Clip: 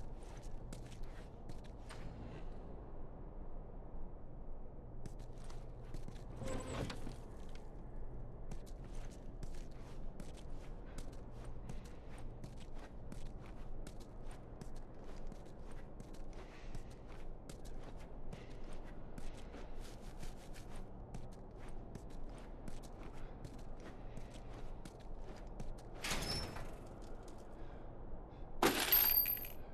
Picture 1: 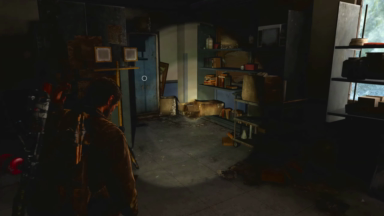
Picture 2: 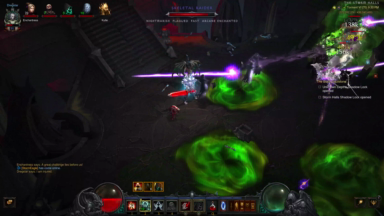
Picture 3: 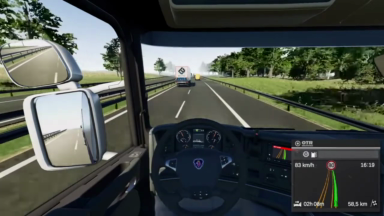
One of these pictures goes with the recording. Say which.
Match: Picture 1